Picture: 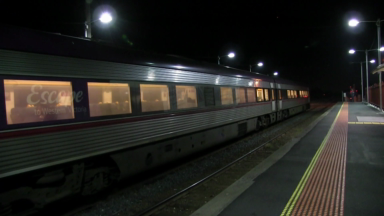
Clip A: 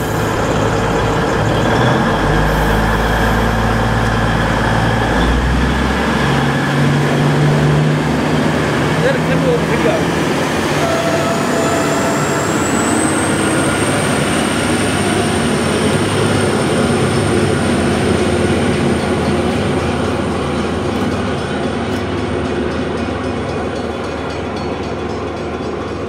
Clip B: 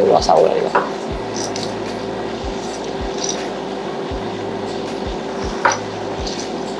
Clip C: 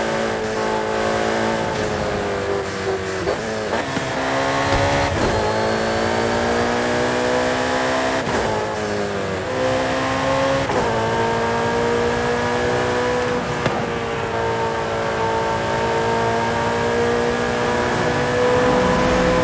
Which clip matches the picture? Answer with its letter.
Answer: A